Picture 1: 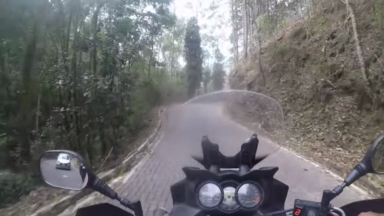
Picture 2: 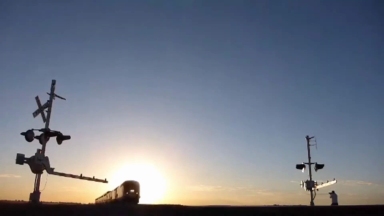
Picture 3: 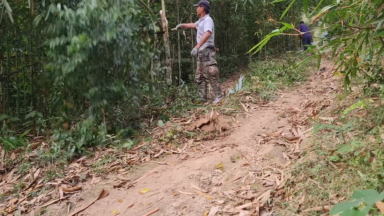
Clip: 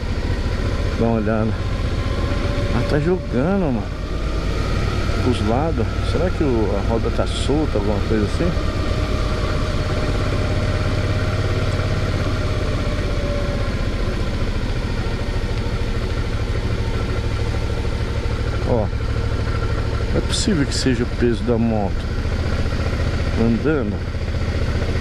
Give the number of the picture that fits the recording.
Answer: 1